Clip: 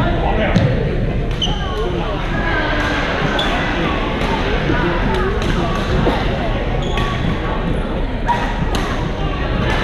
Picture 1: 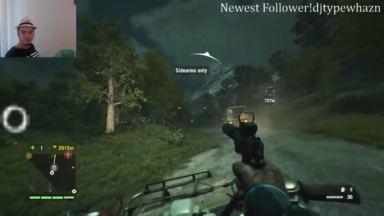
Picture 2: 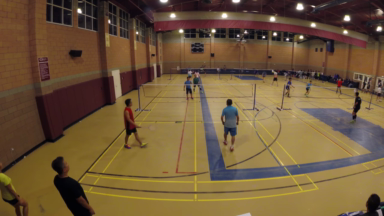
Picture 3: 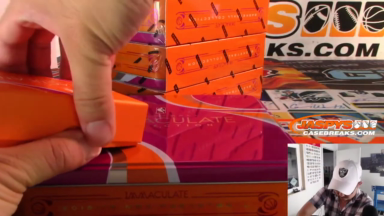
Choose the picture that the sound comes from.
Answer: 2